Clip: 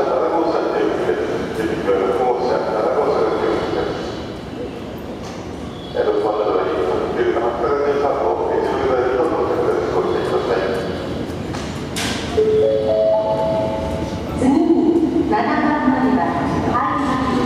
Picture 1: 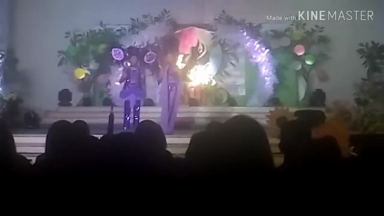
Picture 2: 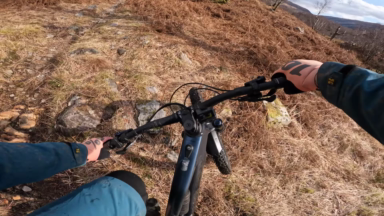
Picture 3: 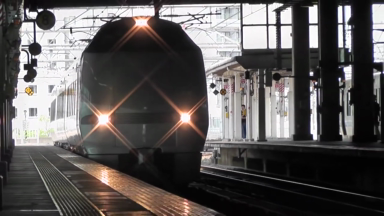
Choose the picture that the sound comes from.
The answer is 3